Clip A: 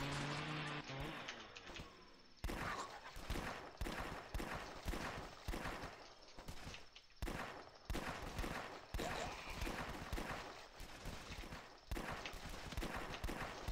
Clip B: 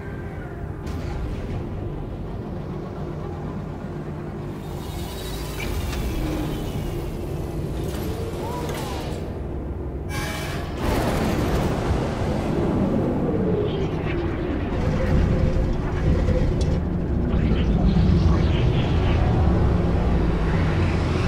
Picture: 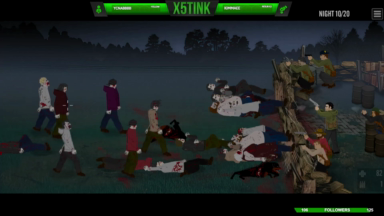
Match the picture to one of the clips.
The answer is A